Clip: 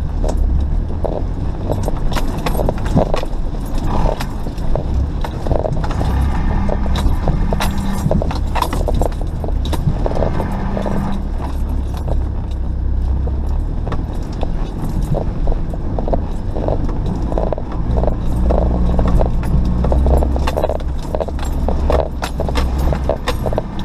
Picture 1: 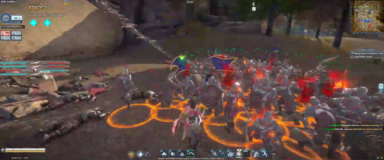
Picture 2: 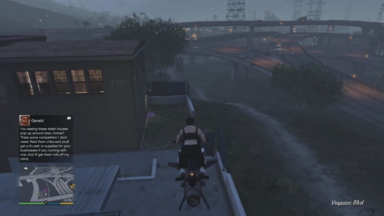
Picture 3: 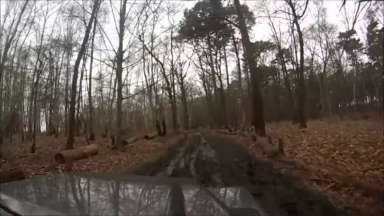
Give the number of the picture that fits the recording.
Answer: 3